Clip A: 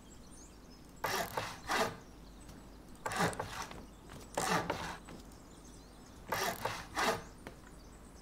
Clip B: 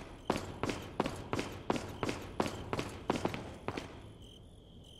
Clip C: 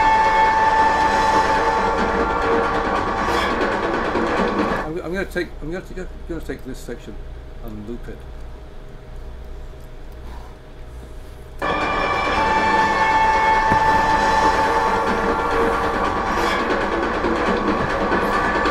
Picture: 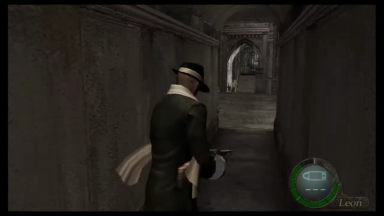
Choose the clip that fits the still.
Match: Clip B